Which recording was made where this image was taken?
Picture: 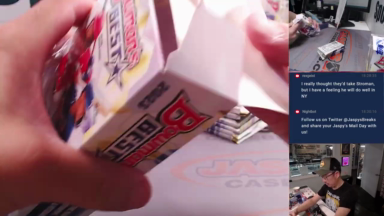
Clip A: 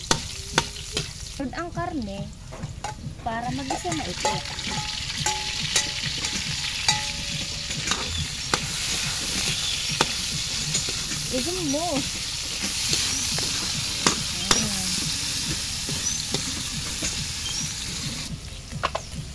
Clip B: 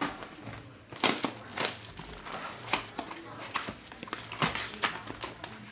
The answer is B